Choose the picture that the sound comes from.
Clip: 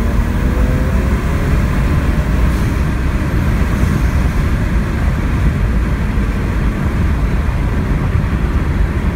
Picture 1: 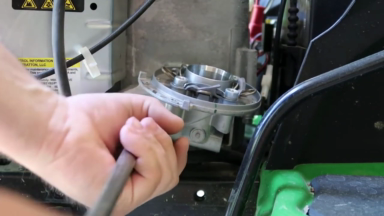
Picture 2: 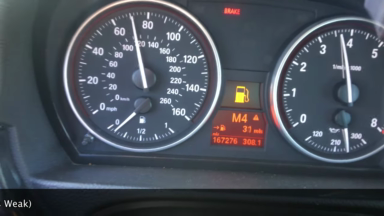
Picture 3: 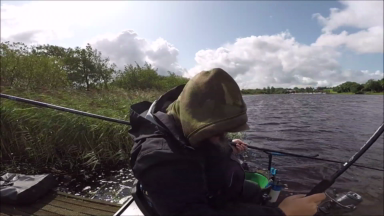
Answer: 2